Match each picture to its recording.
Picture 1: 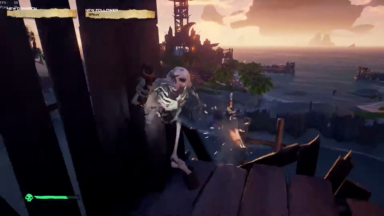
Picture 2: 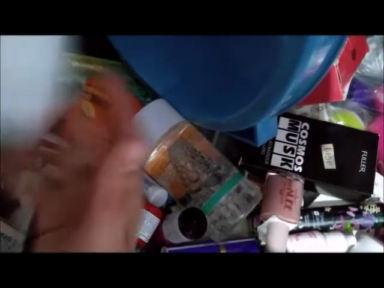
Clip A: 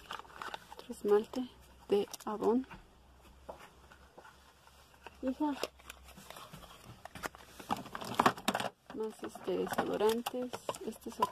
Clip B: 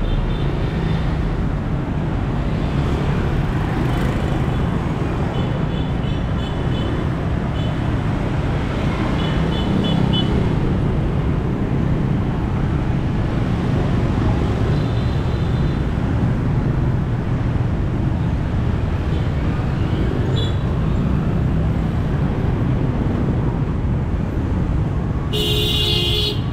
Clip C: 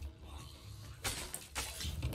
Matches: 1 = C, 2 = A